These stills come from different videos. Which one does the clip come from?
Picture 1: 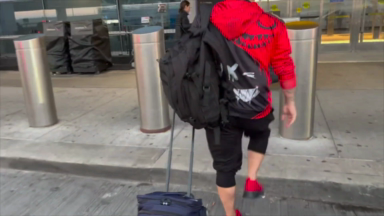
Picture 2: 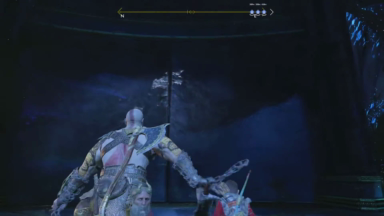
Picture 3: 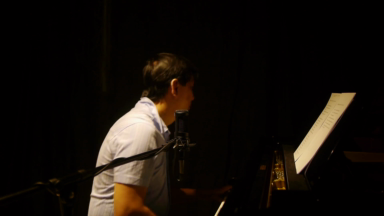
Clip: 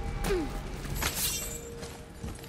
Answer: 2